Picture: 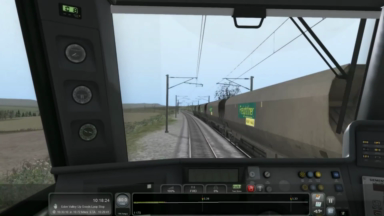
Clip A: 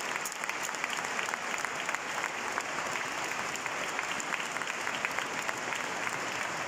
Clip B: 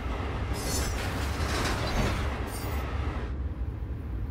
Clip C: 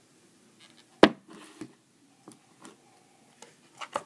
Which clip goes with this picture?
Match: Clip B